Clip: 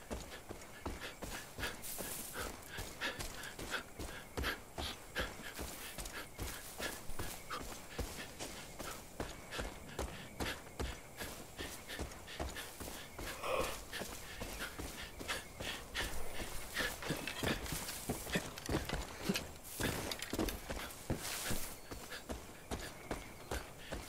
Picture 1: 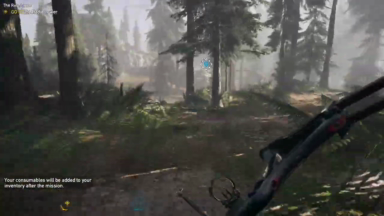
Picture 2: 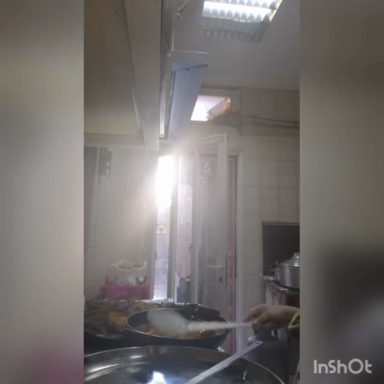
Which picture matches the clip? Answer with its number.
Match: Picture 1